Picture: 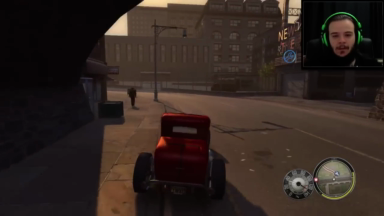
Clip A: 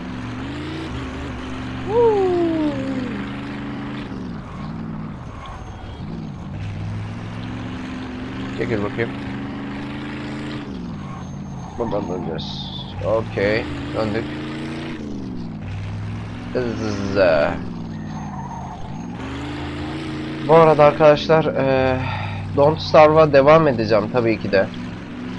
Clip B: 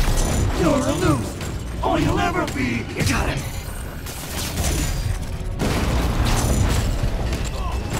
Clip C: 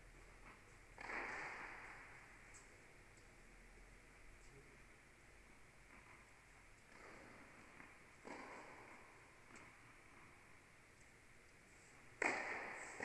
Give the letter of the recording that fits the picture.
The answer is A